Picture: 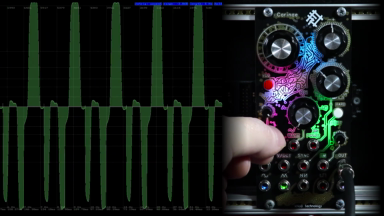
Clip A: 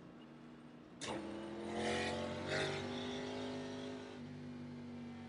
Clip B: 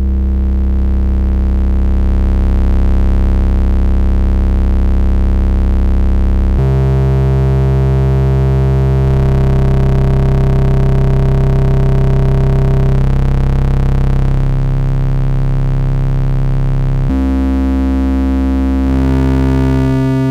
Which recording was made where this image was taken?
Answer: B